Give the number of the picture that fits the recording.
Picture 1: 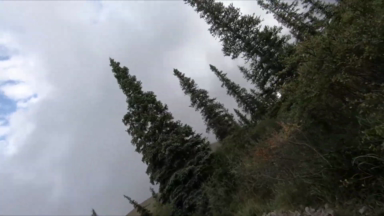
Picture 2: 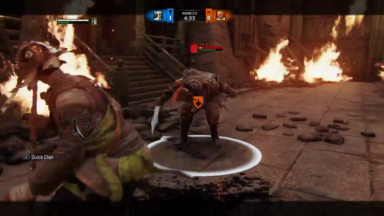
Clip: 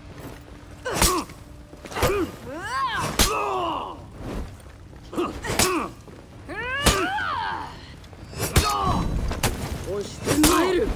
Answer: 2